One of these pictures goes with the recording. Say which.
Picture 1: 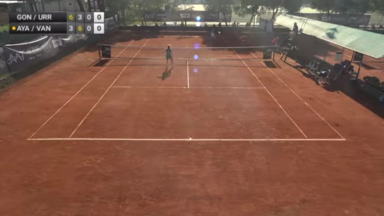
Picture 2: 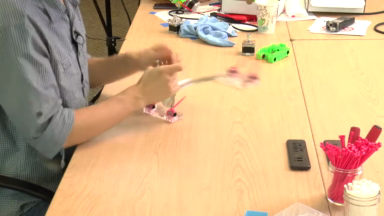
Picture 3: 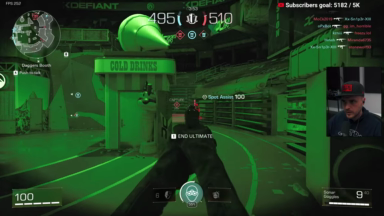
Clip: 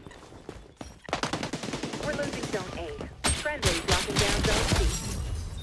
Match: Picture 3